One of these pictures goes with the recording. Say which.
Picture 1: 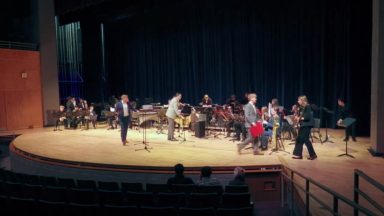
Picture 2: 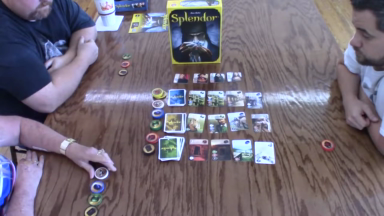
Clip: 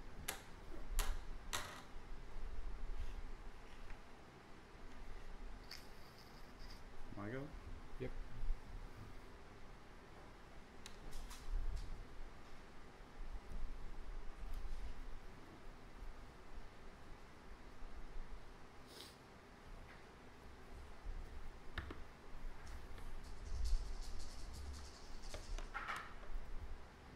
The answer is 2